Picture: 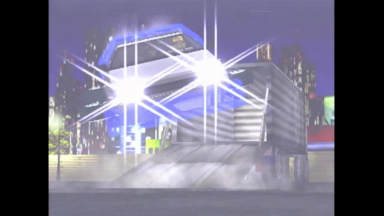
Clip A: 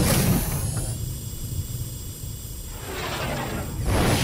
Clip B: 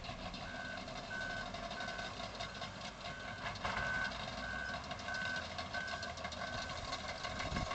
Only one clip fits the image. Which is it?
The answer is A